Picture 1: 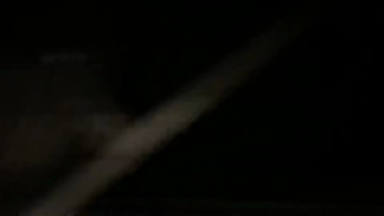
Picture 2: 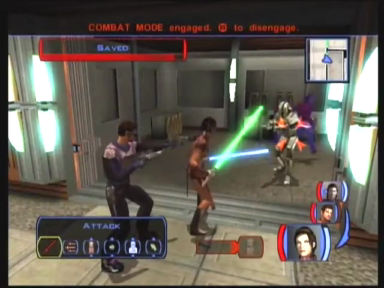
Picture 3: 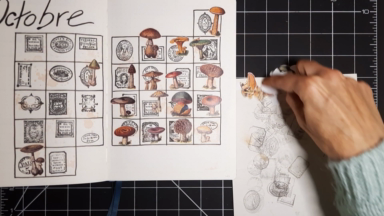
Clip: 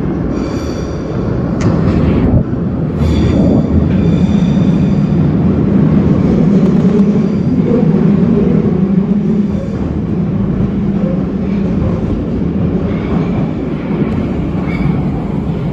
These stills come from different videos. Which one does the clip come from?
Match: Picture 1